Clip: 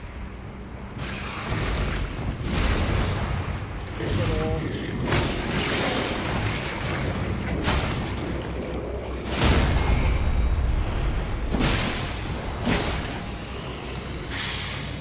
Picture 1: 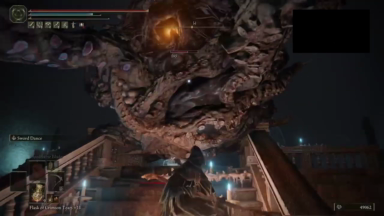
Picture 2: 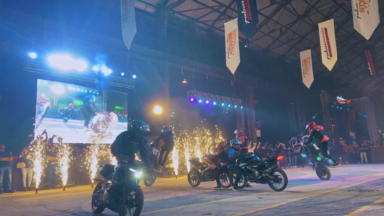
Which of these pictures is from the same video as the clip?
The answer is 1